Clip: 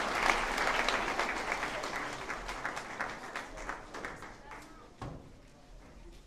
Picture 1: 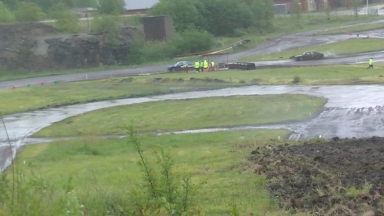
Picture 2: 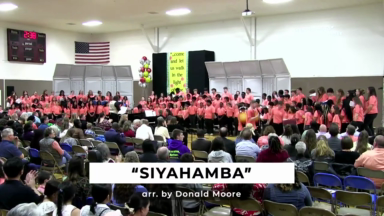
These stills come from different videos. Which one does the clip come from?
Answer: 2